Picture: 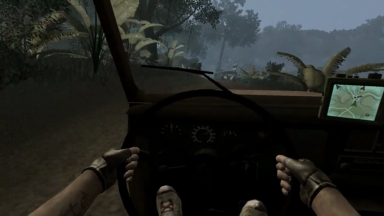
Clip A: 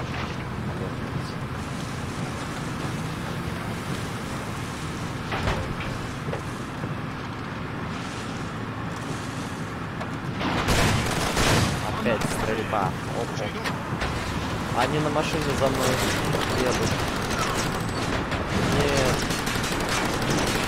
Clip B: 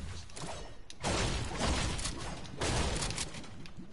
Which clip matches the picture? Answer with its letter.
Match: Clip A